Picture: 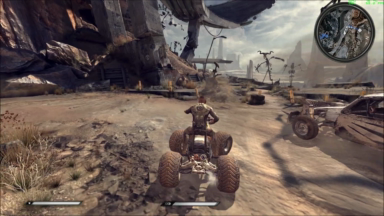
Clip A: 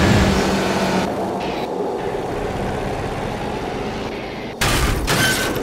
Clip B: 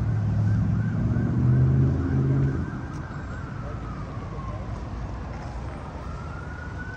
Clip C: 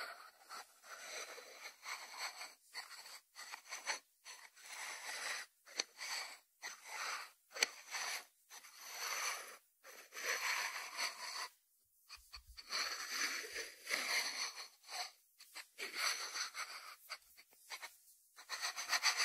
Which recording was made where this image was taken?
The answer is A